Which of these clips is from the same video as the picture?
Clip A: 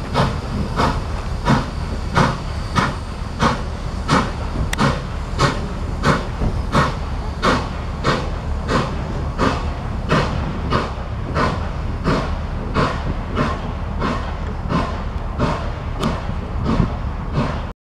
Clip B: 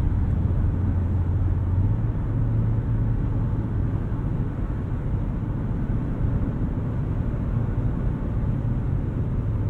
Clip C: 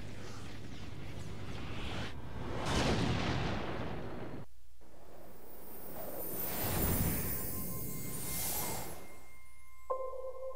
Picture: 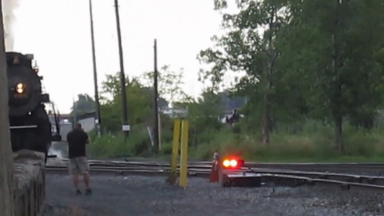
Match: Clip A